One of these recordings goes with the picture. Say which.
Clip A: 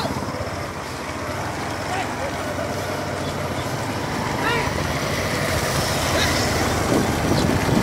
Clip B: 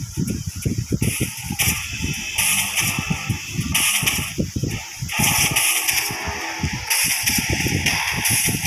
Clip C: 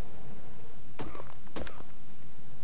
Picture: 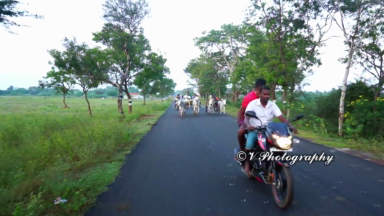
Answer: A